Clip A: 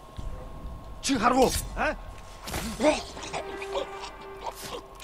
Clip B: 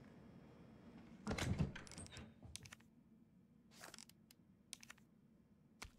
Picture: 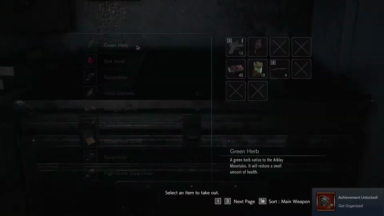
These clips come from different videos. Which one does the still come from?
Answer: B